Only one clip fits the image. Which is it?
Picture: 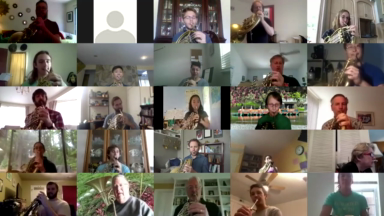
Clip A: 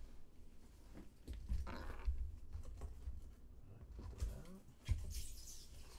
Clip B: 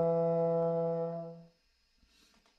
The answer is B